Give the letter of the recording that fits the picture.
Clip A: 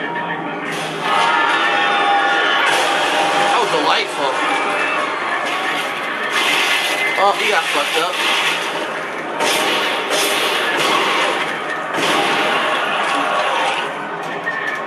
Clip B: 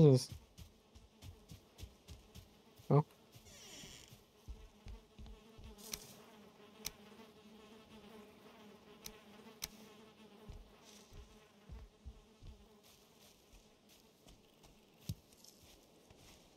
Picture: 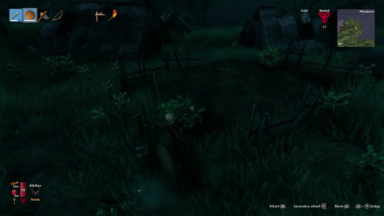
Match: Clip B